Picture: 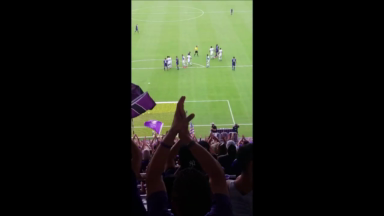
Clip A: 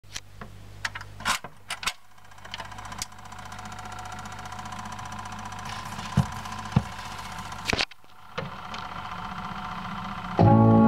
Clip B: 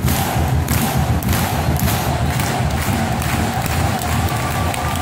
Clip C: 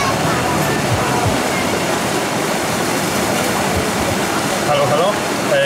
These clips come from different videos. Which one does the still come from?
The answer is B